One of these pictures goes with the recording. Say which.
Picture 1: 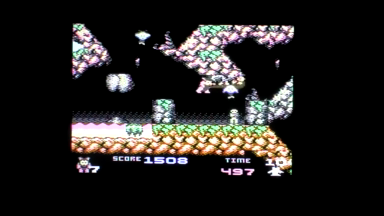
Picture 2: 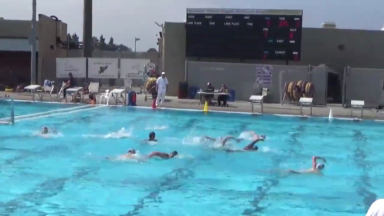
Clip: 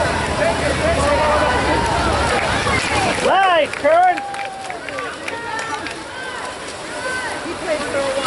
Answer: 2